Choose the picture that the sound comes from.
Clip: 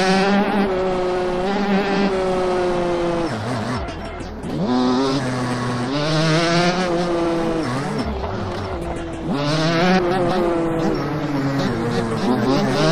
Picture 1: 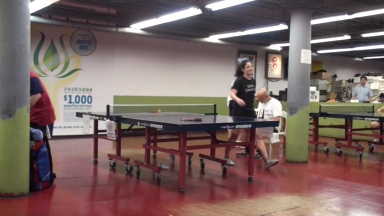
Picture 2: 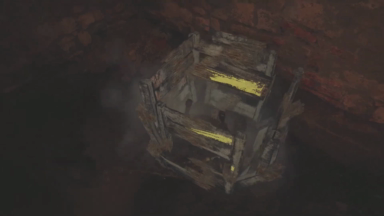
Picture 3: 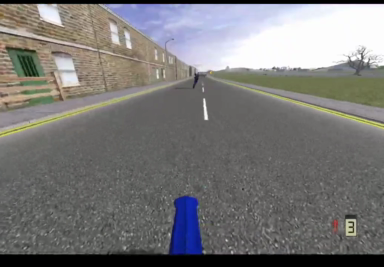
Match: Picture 3